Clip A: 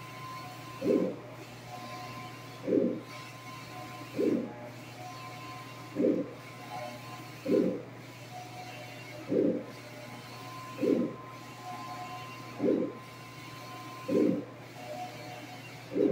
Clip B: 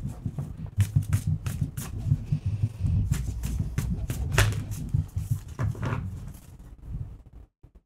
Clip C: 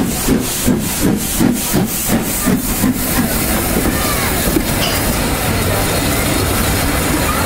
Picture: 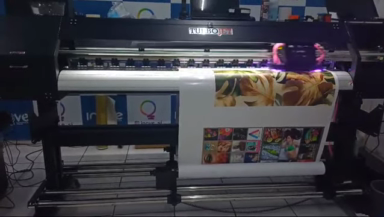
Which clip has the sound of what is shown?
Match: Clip A